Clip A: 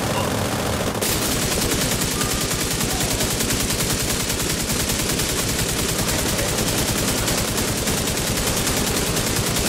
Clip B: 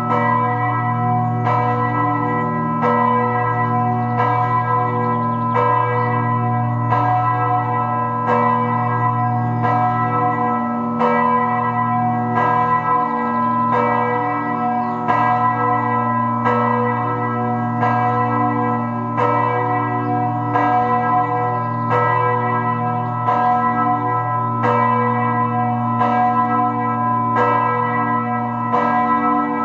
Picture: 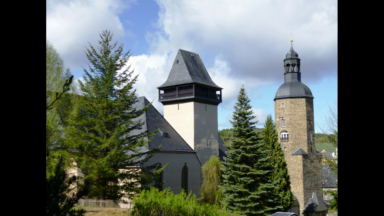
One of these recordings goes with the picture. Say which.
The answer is B